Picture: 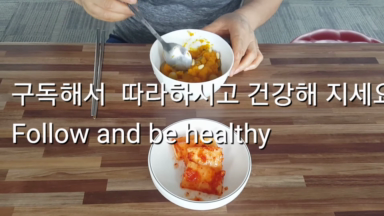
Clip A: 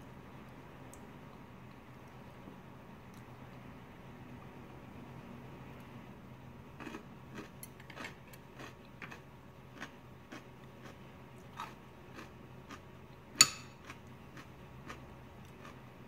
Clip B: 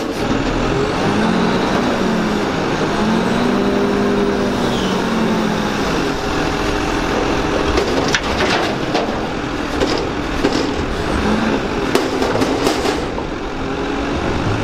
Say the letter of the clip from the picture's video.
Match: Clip A